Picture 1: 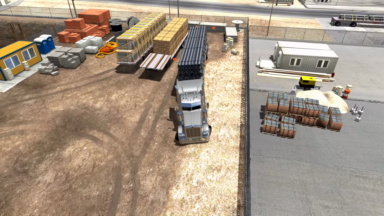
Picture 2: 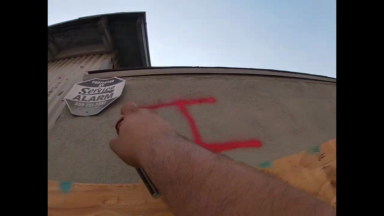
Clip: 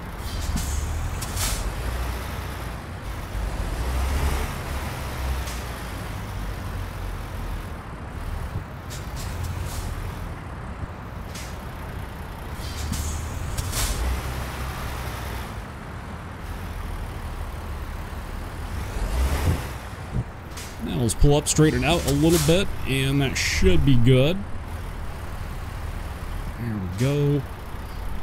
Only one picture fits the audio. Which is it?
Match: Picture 1